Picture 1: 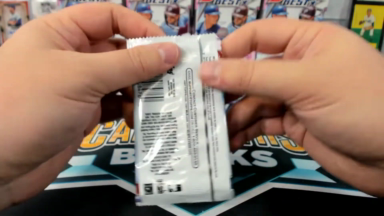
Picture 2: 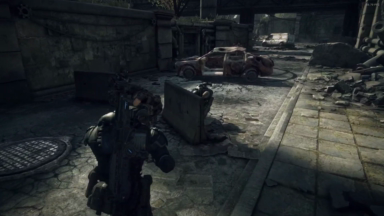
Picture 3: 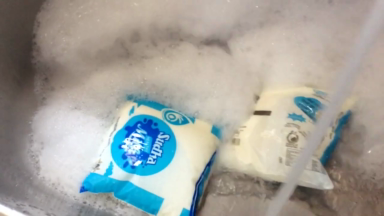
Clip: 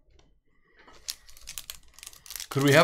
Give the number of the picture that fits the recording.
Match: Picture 1